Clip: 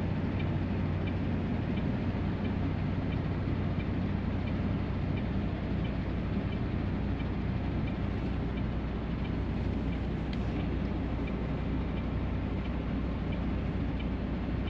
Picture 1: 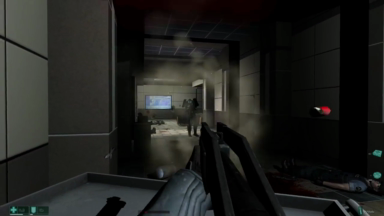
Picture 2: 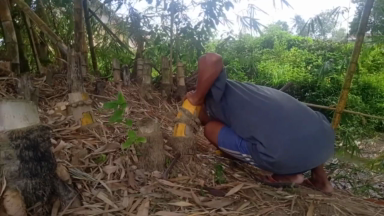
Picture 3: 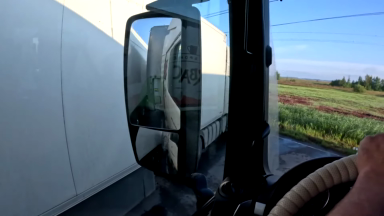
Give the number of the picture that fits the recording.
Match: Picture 3